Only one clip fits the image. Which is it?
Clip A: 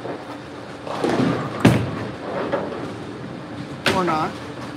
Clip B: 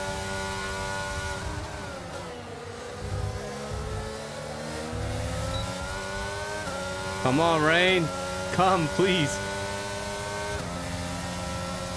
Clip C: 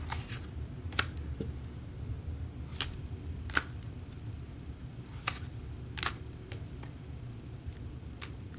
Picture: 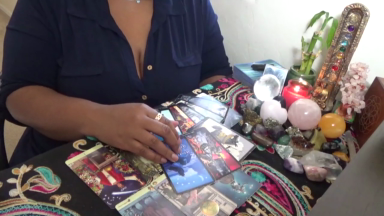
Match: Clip C